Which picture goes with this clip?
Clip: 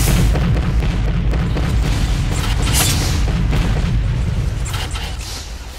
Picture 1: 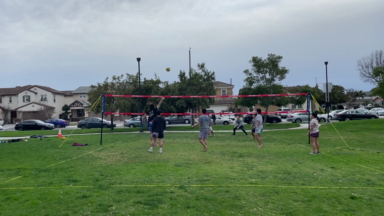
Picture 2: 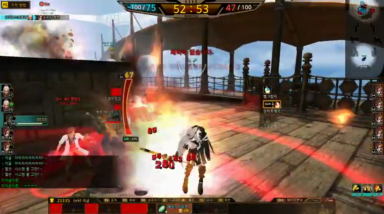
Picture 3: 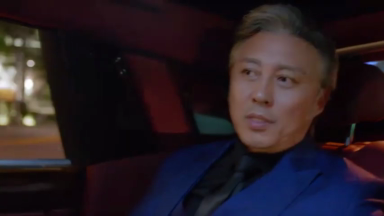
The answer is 2